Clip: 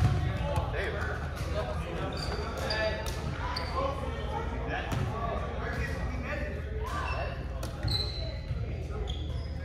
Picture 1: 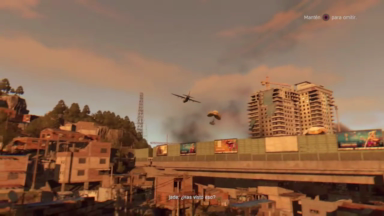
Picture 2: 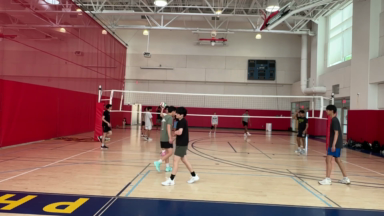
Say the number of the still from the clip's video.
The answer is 2